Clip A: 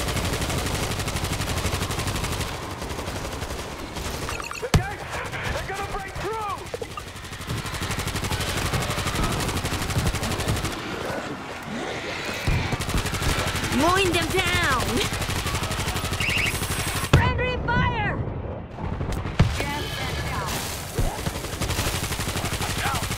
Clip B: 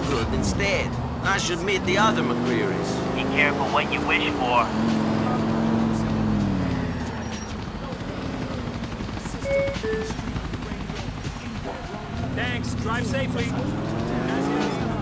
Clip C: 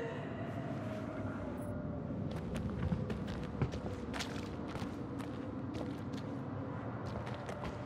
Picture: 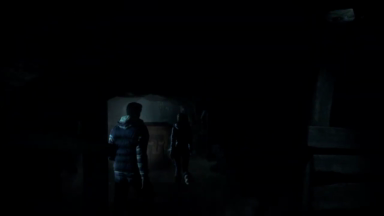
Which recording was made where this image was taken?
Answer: C